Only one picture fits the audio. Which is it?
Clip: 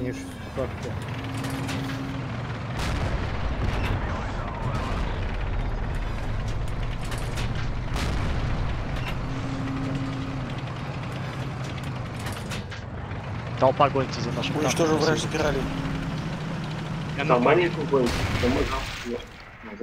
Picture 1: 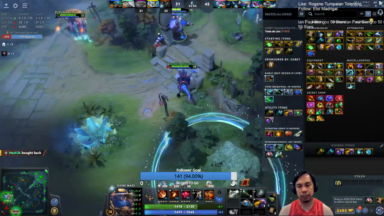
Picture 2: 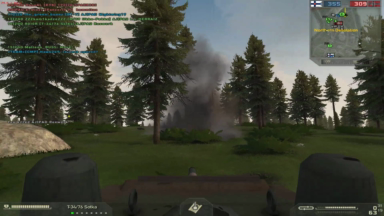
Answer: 2